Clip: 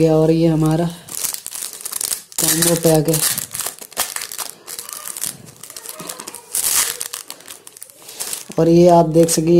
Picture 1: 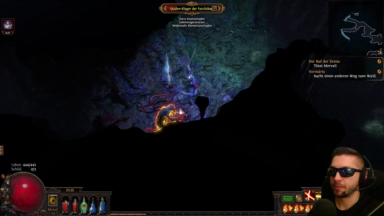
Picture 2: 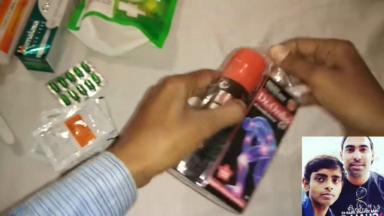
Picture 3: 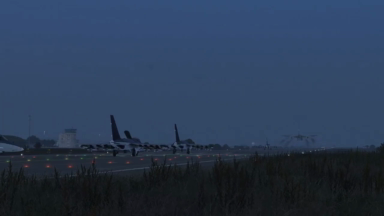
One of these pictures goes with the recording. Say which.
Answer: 2